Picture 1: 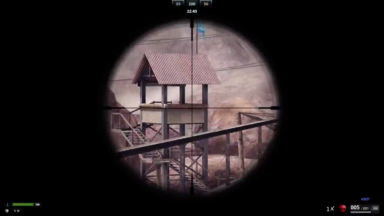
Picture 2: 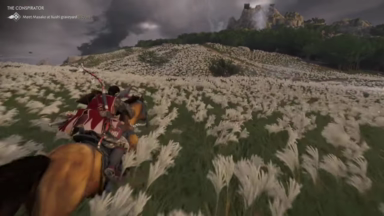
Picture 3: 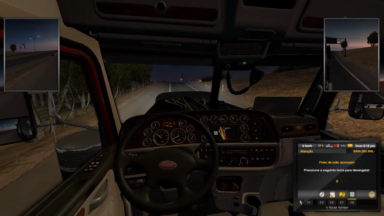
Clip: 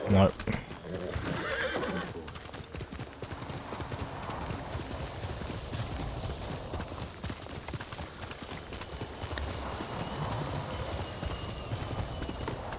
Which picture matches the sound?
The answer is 2